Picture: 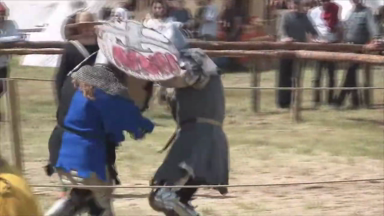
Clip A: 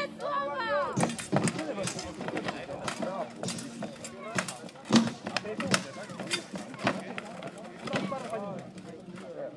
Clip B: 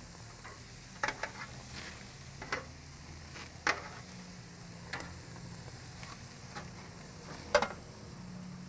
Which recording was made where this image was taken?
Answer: A